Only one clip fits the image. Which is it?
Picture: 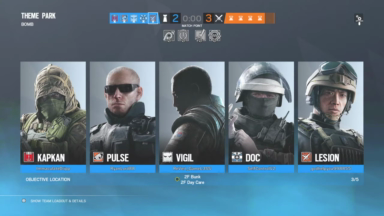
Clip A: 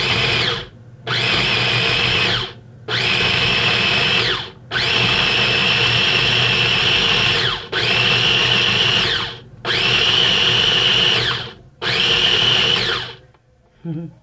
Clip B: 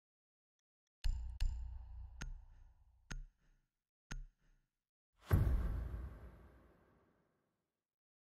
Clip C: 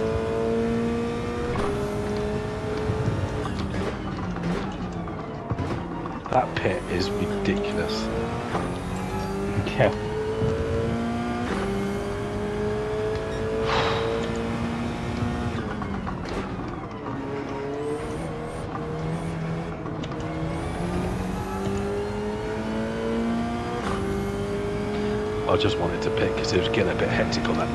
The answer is B